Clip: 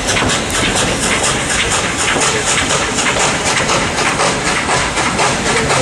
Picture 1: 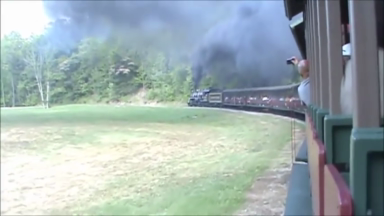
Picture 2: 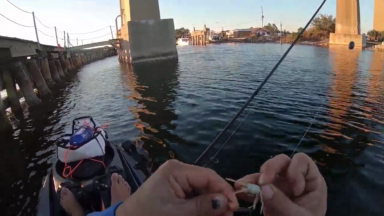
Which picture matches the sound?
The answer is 1